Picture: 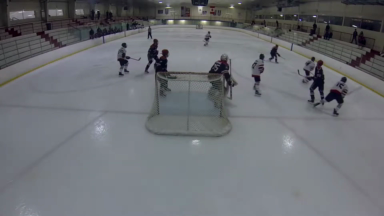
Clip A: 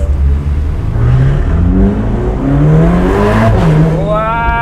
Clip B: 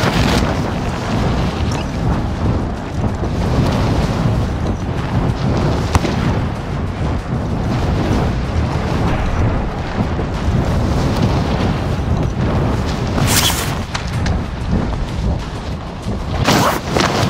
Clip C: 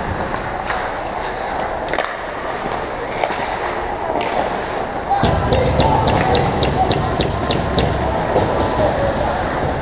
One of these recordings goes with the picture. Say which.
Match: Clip C